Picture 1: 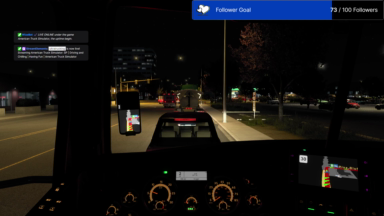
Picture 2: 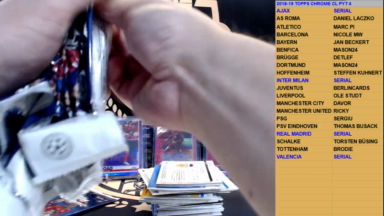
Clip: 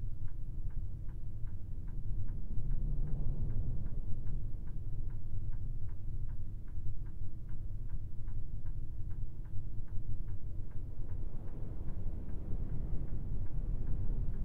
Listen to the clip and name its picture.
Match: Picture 1